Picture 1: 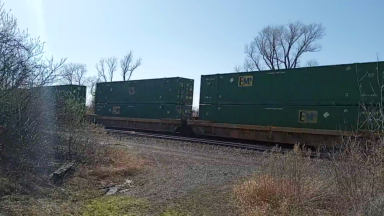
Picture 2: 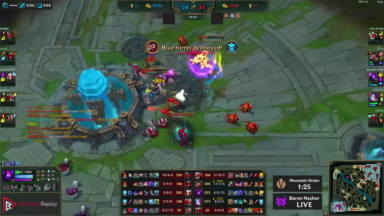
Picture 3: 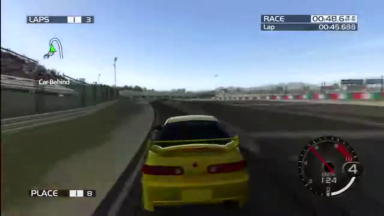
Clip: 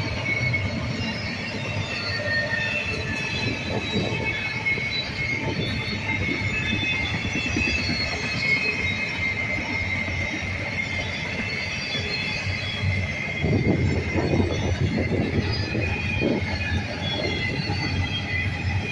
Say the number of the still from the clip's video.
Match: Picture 1